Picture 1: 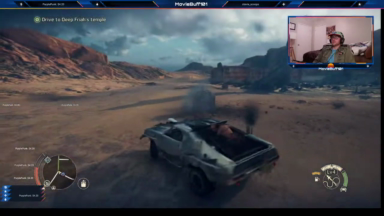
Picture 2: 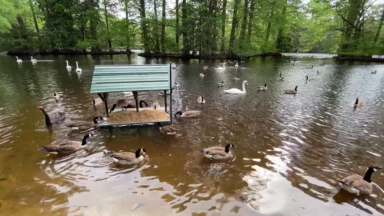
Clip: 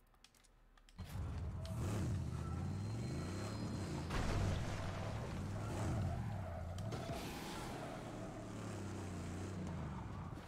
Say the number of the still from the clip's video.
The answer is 1